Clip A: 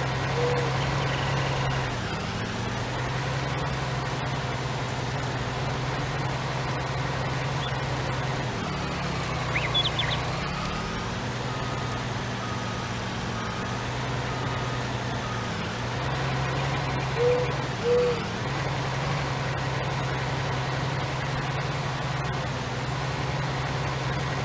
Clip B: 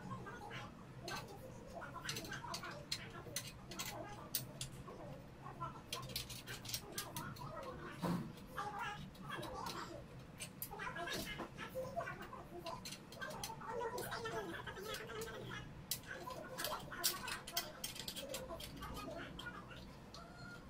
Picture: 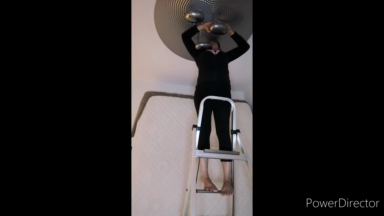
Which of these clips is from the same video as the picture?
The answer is B